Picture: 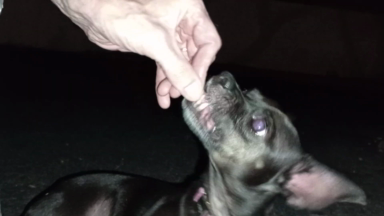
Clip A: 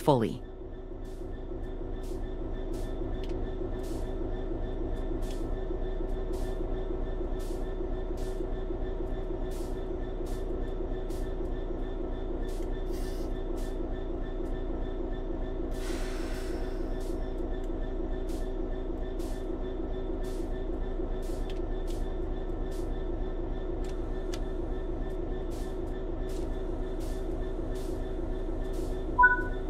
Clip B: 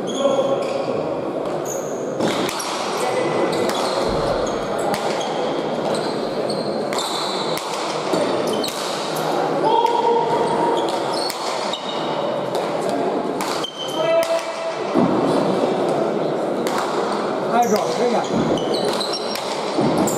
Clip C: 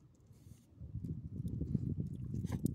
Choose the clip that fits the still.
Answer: C